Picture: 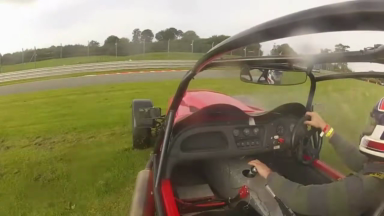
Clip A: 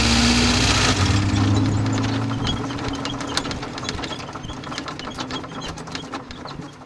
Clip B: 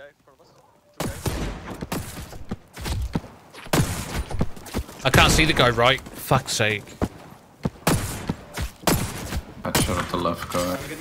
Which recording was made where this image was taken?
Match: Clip A